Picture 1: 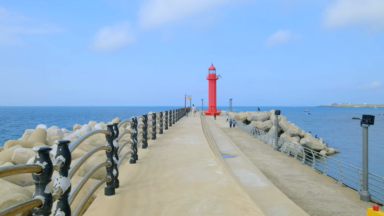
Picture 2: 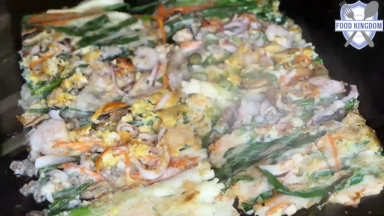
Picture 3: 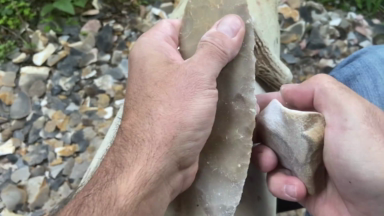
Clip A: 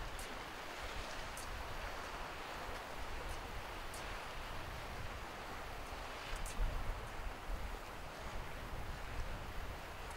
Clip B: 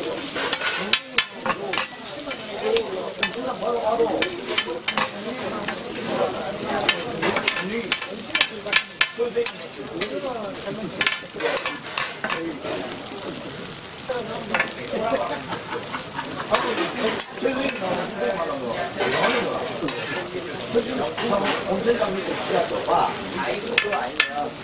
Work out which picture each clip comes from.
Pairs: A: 1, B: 2